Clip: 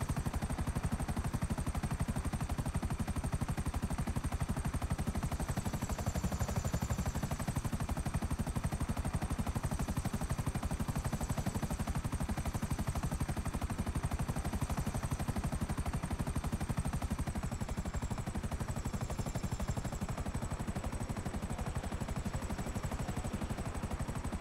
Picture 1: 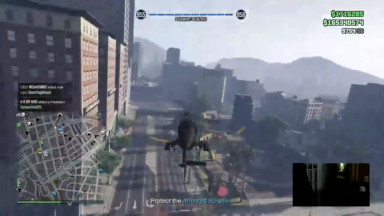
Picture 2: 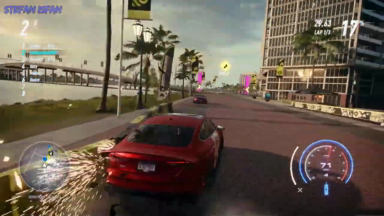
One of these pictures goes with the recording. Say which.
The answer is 1